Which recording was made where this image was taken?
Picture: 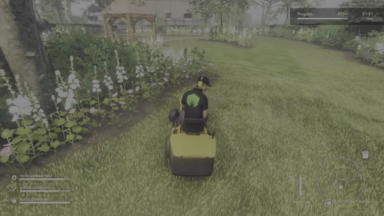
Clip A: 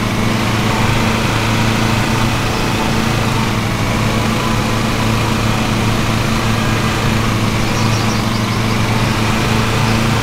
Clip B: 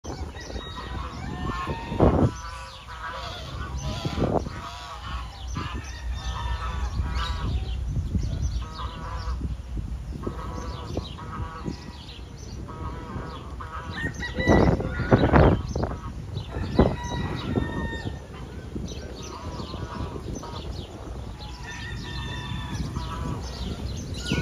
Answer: A